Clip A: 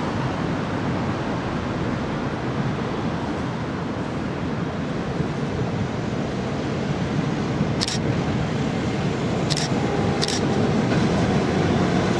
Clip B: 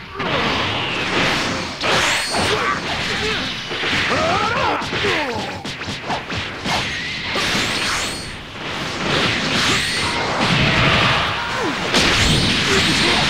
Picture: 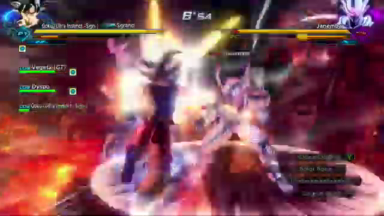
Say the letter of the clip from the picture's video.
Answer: B